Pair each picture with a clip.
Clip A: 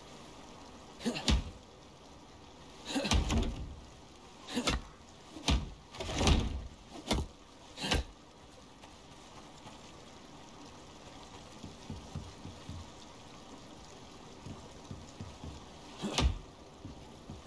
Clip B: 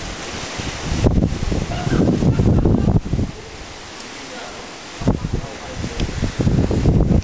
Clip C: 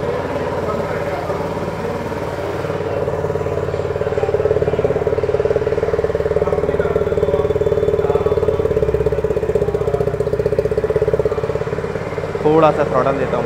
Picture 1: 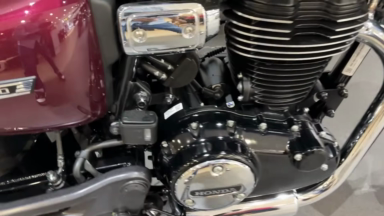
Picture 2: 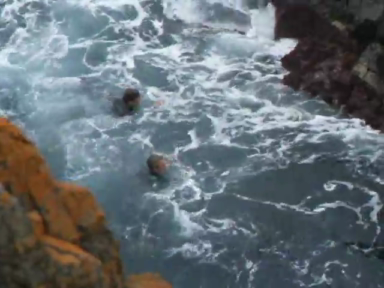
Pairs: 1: C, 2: B